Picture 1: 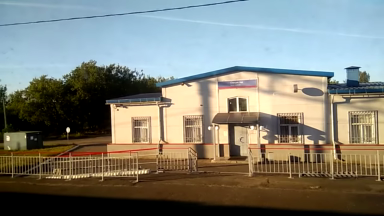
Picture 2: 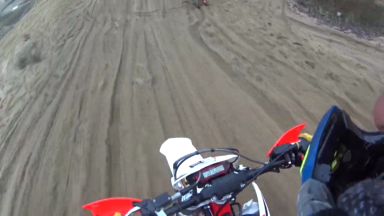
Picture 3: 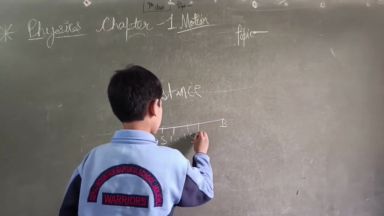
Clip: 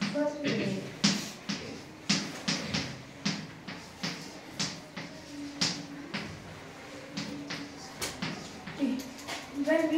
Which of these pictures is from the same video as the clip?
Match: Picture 3